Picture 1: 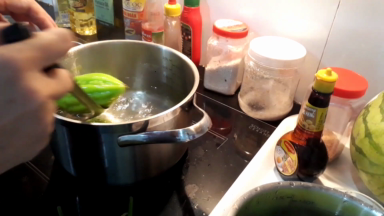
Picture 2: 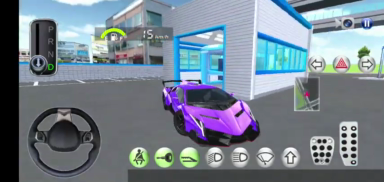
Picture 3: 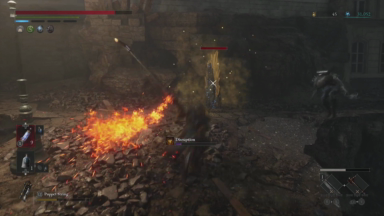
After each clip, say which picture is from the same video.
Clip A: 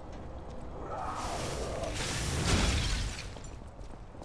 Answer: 3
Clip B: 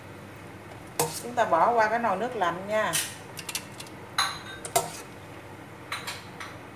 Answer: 1